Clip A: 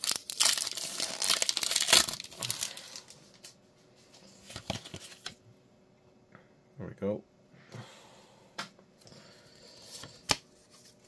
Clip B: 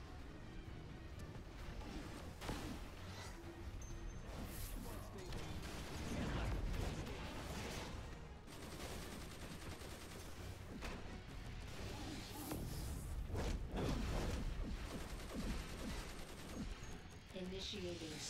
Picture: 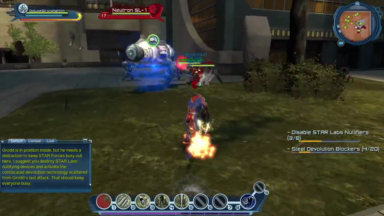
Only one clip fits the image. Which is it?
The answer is B